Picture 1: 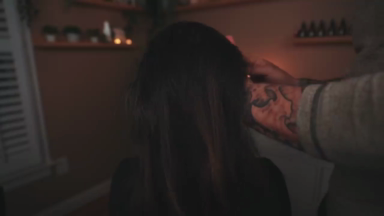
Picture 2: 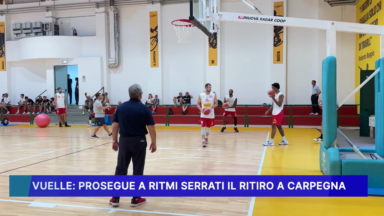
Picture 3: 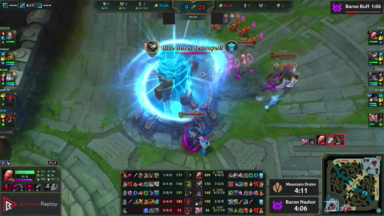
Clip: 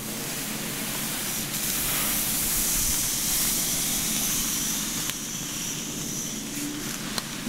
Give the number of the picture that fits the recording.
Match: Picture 1